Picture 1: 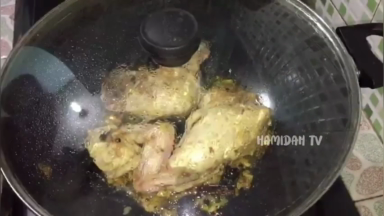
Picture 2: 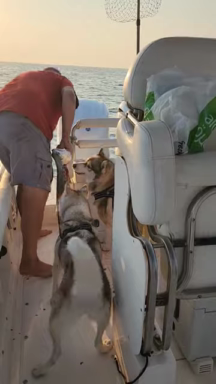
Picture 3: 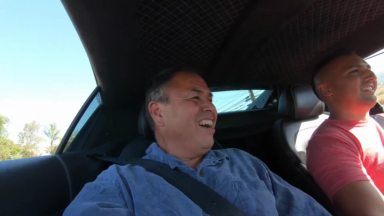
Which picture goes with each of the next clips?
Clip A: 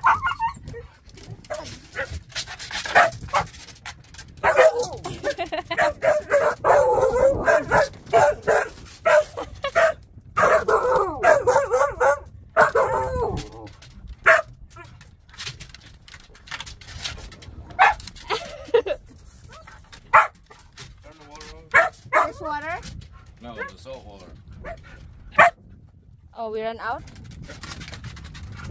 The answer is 2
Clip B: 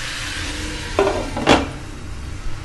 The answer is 1